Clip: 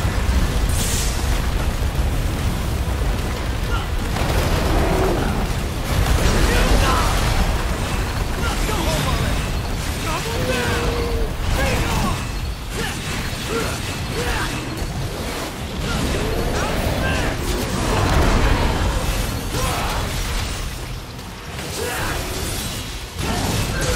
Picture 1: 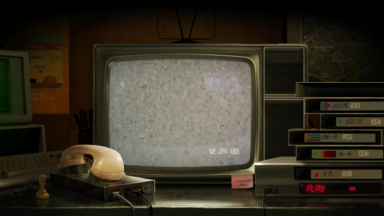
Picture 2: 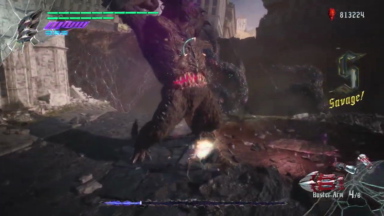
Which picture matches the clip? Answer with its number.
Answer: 2